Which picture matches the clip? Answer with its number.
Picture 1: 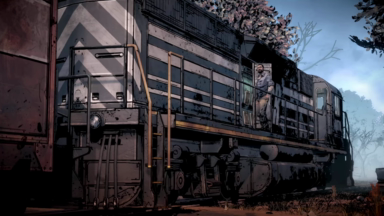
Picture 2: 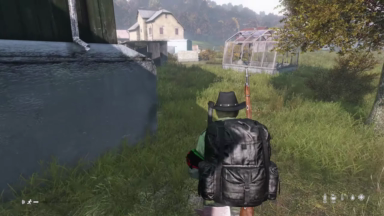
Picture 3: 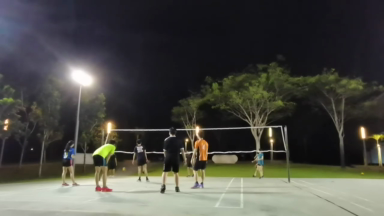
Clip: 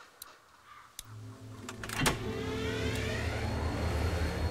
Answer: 1